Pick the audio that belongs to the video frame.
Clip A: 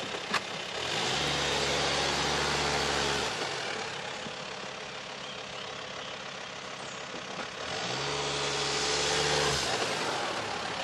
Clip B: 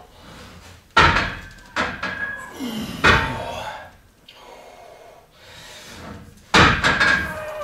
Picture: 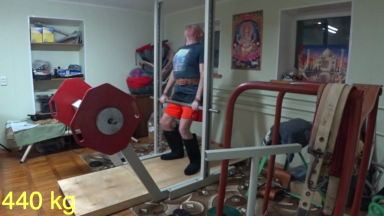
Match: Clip B